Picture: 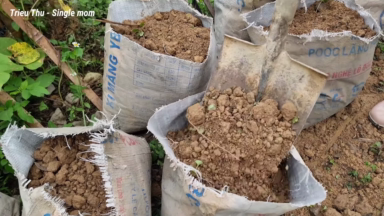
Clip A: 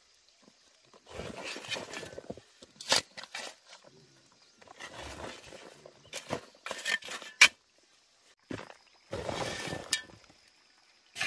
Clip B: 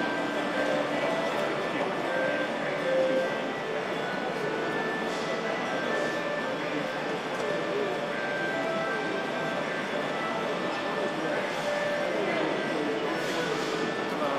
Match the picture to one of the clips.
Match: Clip A